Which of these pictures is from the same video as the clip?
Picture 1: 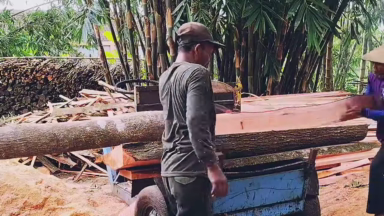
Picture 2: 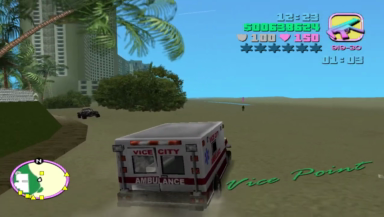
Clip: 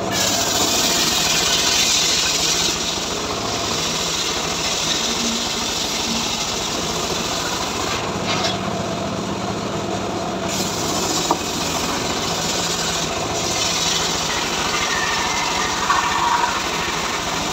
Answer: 1